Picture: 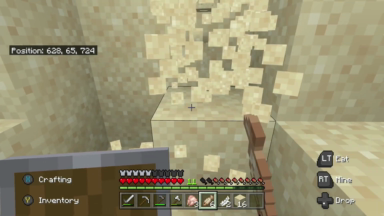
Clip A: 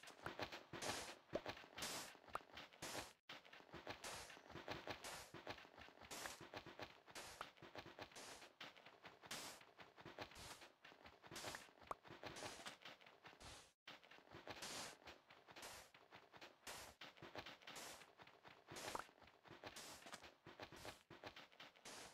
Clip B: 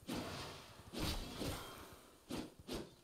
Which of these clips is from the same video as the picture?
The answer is A